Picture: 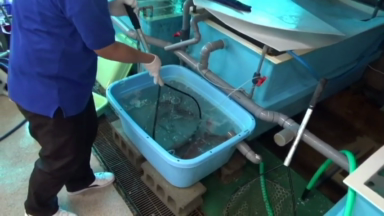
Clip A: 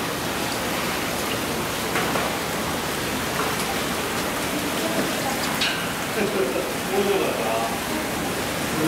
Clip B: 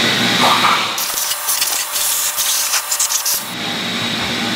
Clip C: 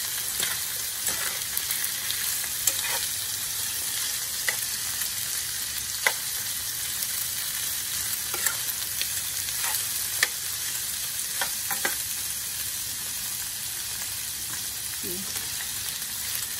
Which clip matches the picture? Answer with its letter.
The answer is A